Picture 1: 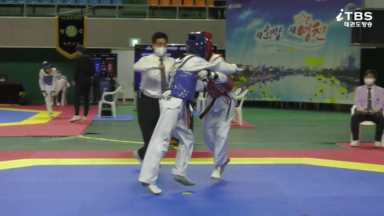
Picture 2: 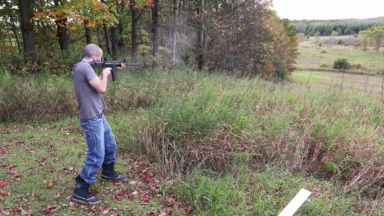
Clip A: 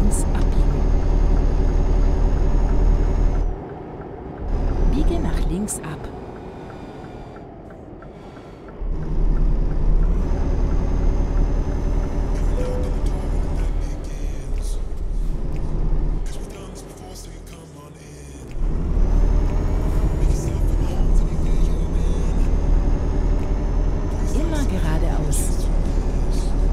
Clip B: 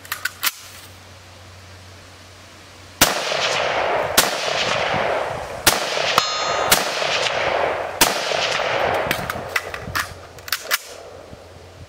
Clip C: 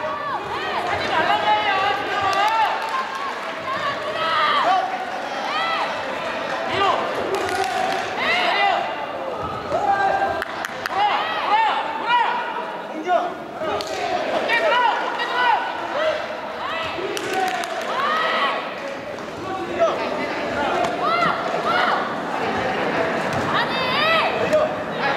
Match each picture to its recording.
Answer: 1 C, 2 B